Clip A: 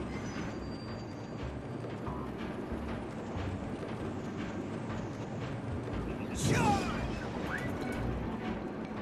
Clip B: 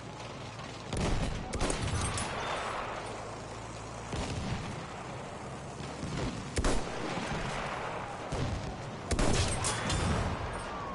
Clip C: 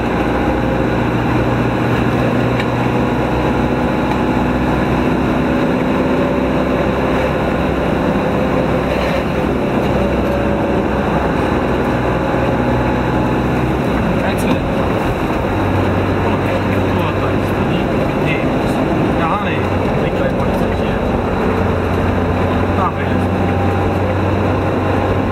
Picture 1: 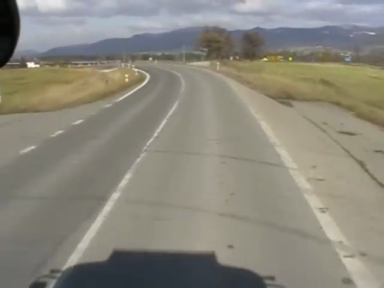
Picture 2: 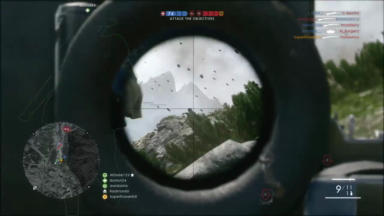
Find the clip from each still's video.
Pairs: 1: C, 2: B